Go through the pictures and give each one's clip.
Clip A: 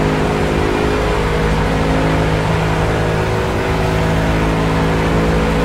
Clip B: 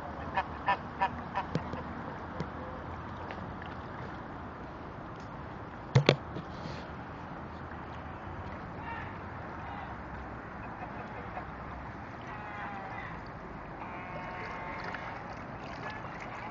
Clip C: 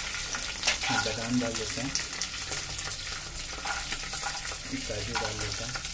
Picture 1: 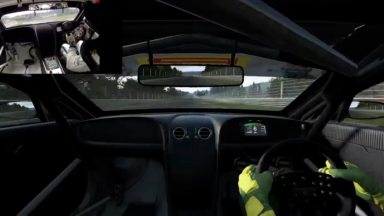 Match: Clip A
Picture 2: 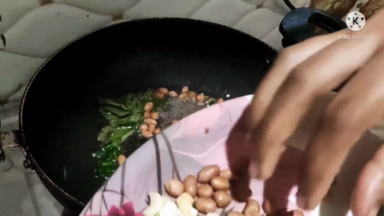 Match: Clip C